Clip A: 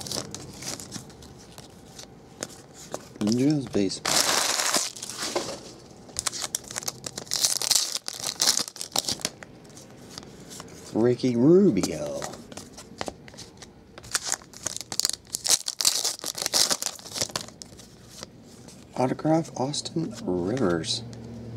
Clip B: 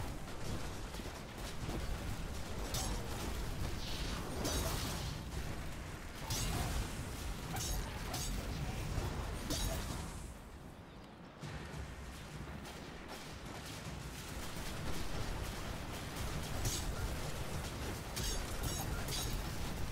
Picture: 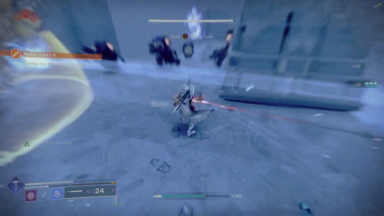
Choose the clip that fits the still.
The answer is B